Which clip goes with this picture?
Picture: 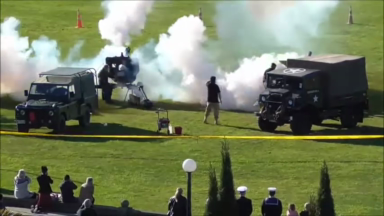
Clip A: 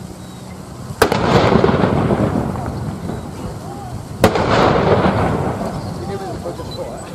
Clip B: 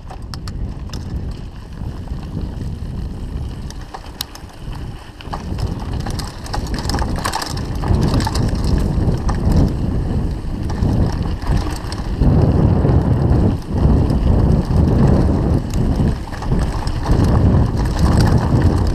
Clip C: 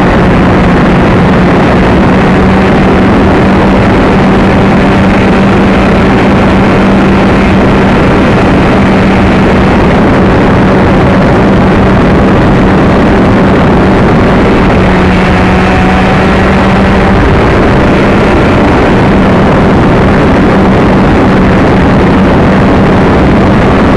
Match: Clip A